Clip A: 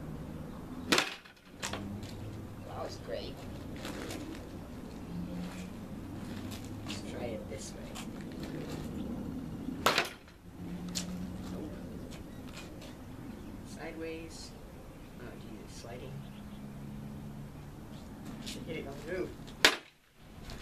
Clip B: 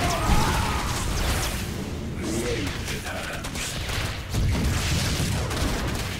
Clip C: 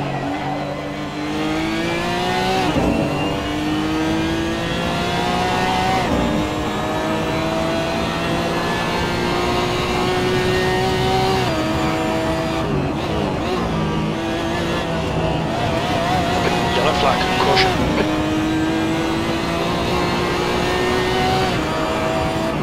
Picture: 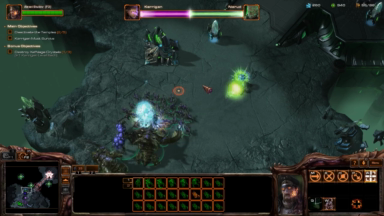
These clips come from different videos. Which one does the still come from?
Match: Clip B